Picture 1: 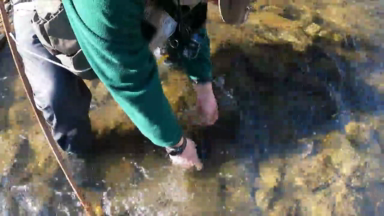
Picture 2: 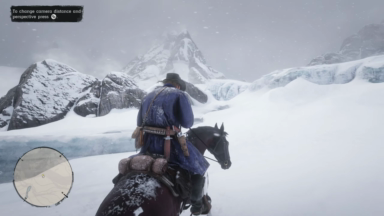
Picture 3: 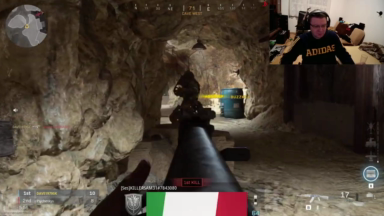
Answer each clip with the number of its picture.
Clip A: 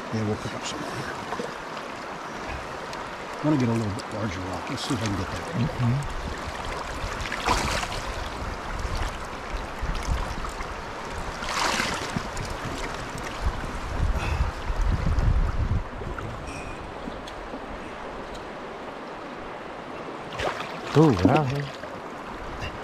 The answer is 1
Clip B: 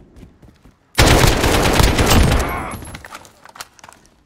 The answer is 3